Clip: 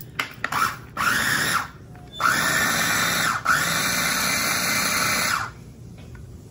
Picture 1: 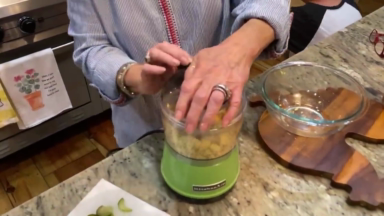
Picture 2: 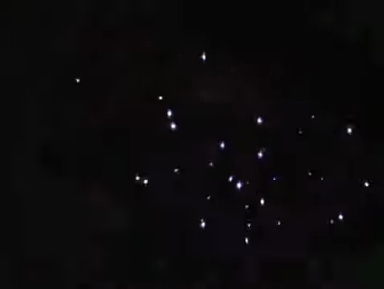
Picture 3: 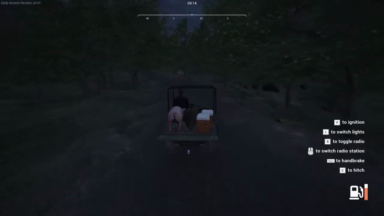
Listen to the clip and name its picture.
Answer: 1